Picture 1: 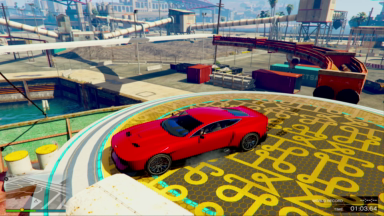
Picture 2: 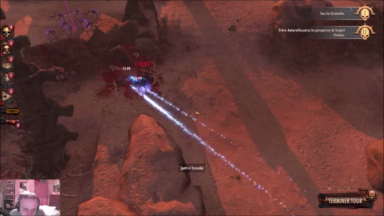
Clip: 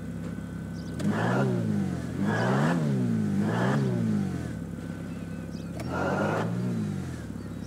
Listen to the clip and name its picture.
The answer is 1